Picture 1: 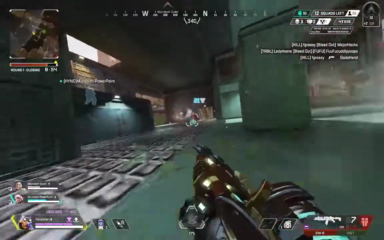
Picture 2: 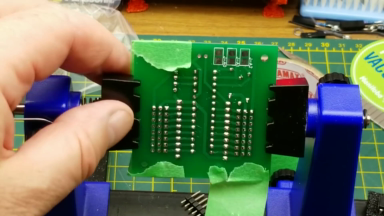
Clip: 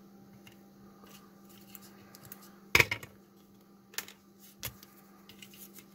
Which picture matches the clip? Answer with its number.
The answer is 2